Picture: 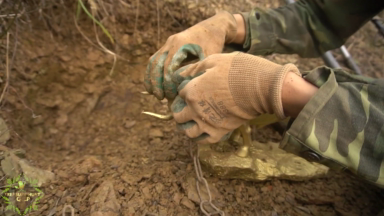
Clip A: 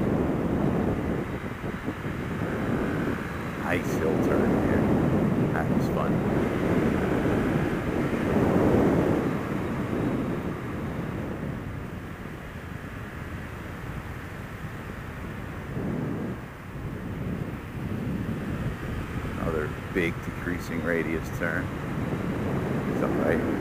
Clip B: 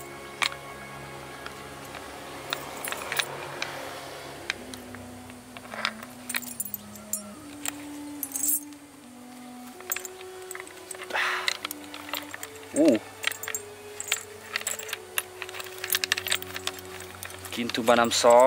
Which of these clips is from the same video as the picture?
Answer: B